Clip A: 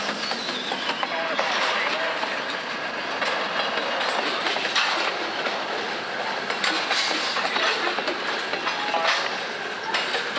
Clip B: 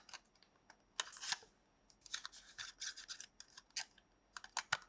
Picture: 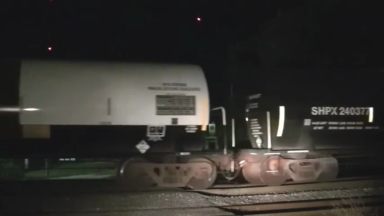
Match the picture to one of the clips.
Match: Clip A